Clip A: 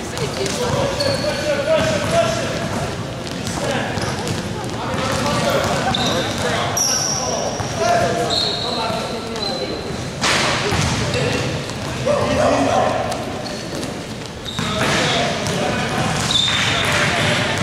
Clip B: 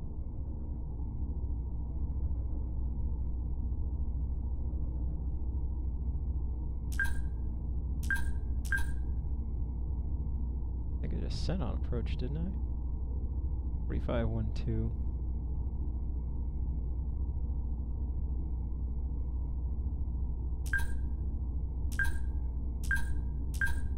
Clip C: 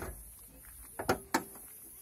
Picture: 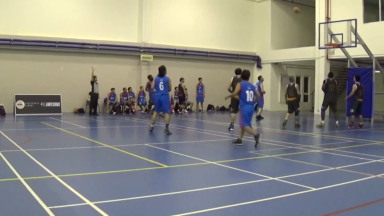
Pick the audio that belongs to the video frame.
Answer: A